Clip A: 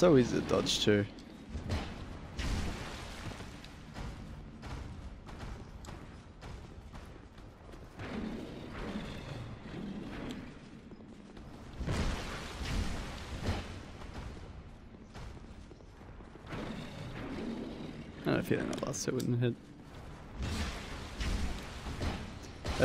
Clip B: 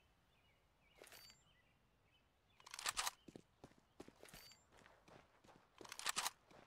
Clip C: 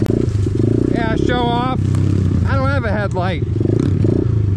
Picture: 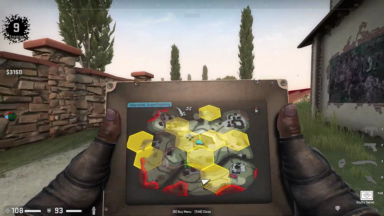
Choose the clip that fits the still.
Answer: B